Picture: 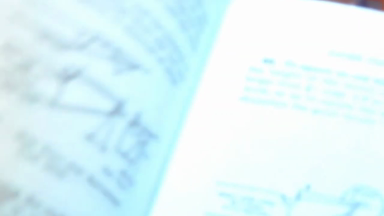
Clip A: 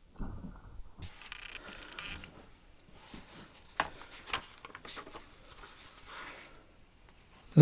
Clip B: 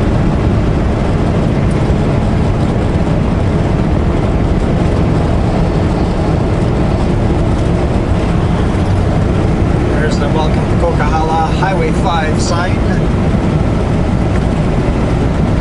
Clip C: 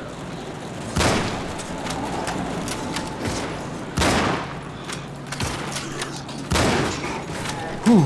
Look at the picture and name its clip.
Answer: A